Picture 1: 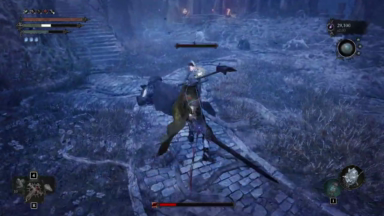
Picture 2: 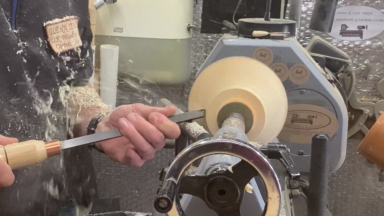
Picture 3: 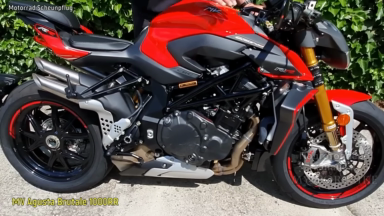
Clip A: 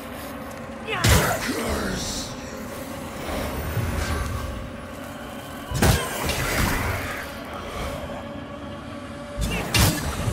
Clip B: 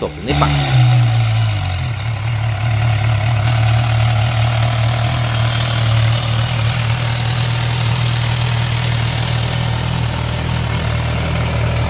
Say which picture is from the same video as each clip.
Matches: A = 1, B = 3